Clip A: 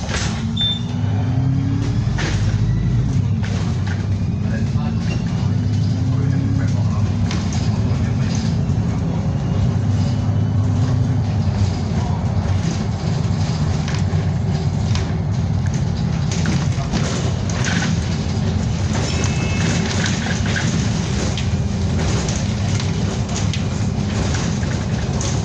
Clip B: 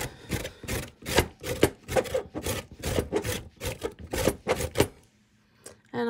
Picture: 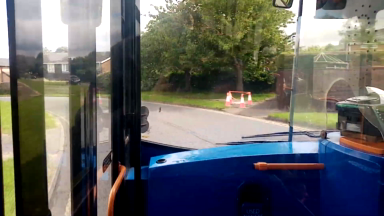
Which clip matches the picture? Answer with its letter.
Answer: A